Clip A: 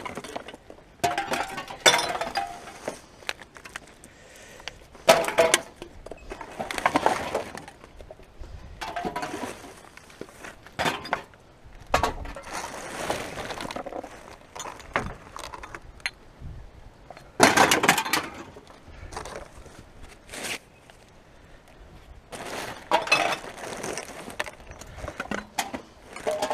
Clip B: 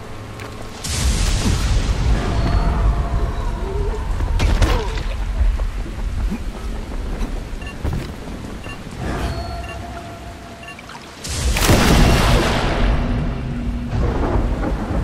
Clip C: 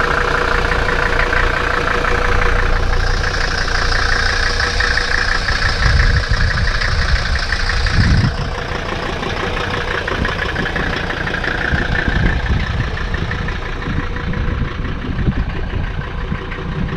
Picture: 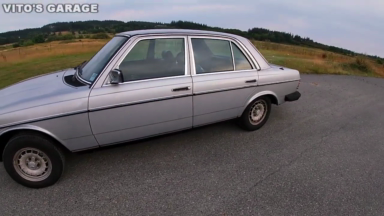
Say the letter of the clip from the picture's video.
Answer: C